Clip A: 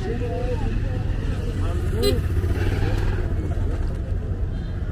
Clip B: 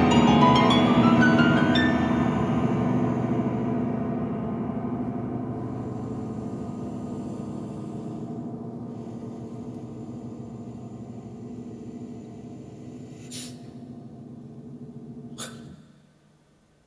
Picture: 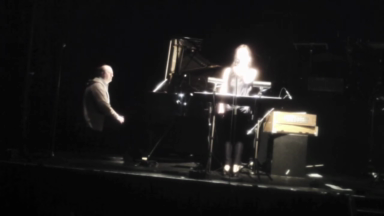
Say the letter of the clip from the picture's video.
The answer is B